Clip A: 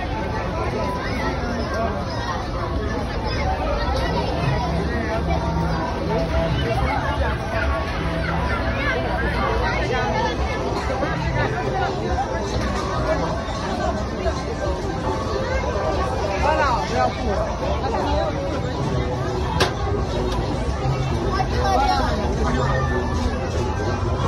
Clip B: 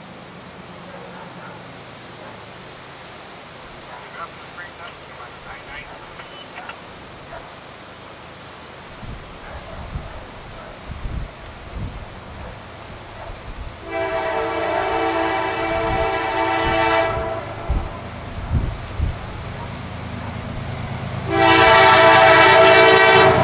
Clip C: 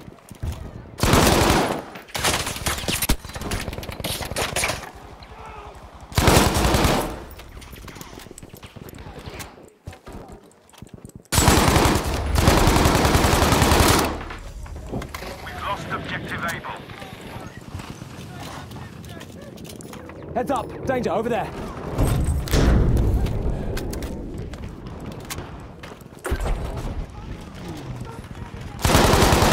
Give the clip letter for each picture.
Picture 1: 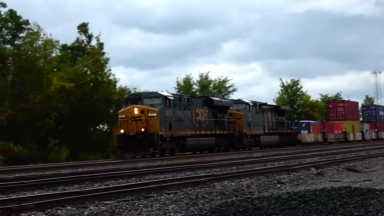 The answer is B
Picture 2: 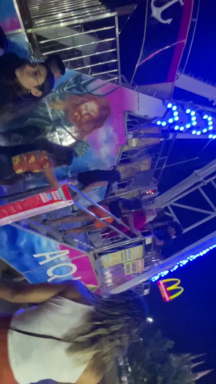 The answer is A